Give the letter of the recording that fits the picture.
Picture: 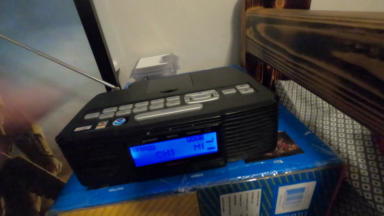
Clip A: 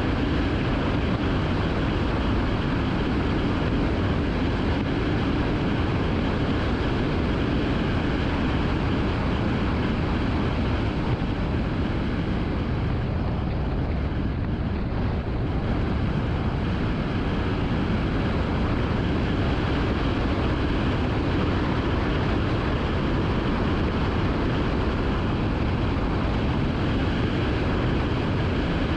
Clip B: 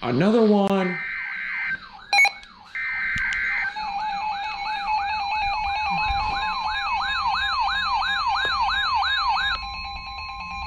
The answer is B